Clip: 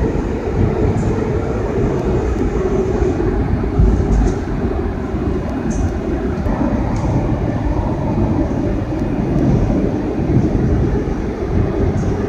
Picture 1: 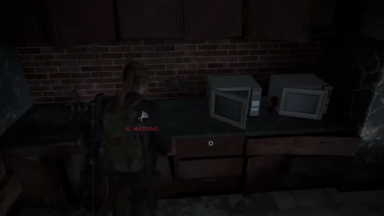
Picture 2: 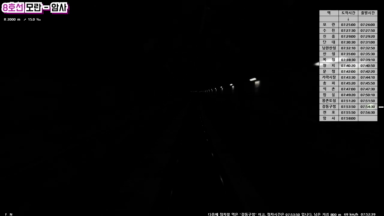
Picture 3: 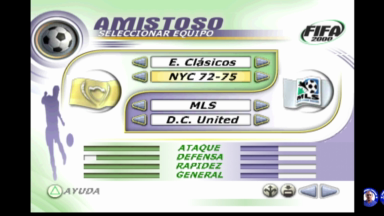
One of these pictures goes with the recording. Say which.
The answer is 2